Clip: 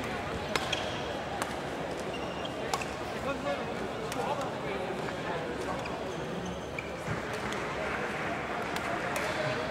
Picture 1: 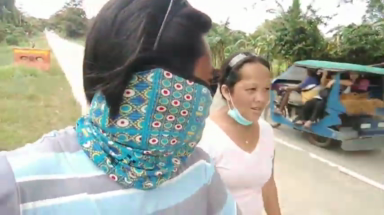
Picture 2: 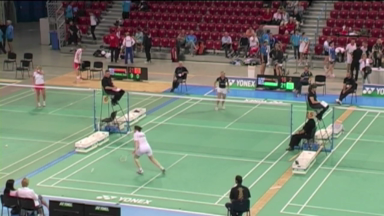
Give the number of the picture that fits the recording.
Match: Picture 2